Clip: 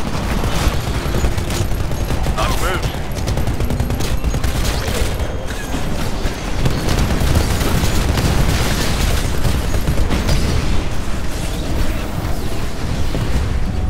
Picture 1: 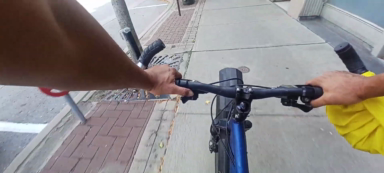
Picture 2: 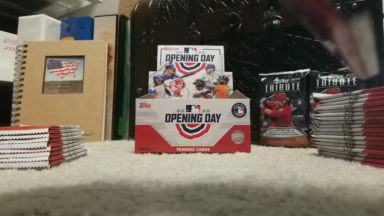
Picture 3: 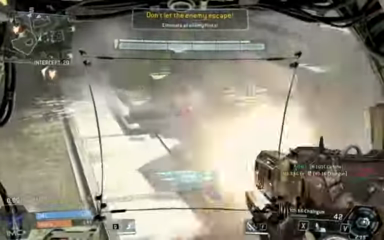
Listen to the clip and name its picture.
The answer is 3